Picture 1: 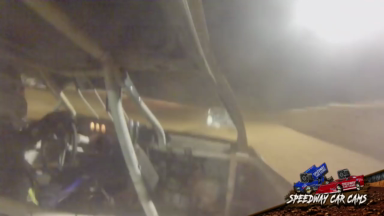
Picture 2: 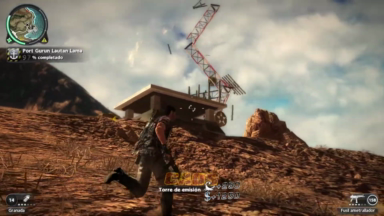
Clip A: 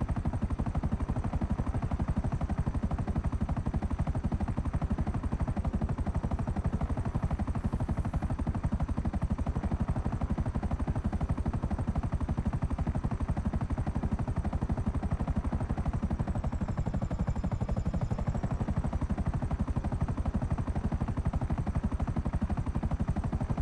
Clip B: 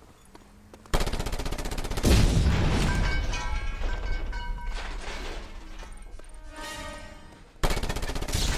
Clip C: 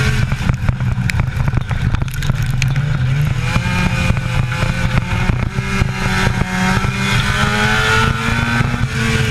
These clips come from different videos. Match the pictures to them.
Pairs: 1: C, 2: B